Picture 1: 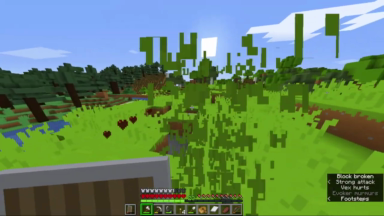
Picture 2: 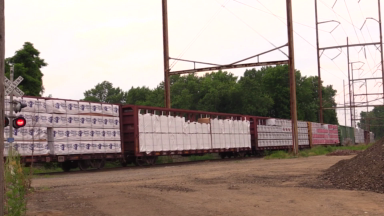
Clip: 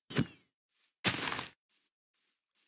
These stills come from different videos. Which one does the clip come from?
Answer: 1